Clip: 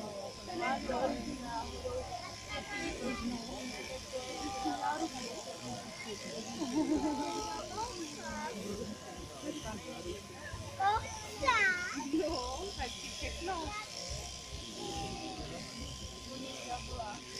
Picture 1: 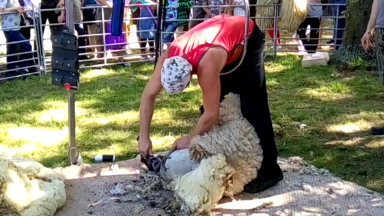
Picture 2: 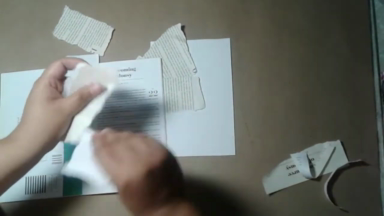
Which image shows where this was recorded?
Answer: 1